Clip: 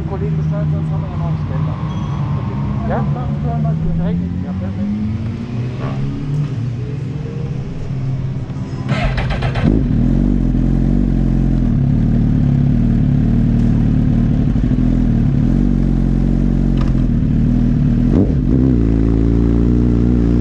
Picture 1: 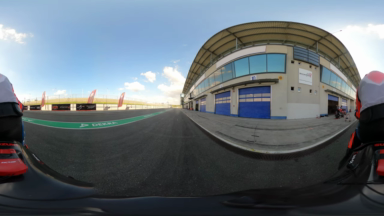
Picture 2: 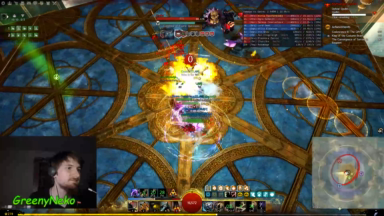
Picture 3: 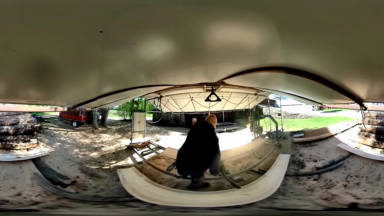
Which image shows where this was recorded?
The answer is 1